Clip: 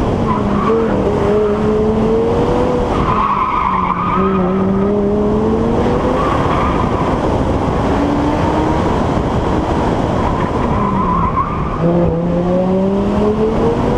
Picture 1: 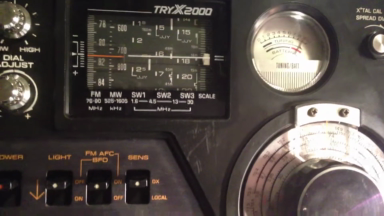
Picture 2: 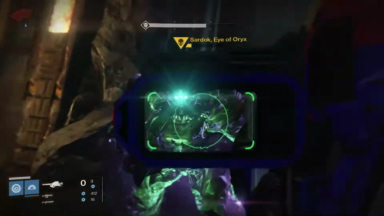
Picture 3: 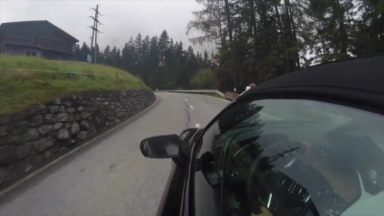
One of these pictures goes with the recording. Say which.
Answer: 3